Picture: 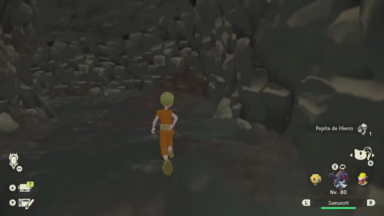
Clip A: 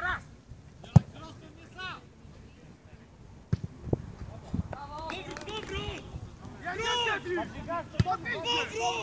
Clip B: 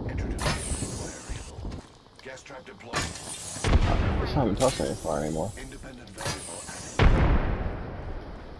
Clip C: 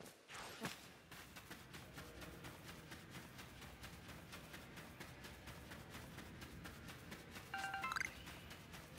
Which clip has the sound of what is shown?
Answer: C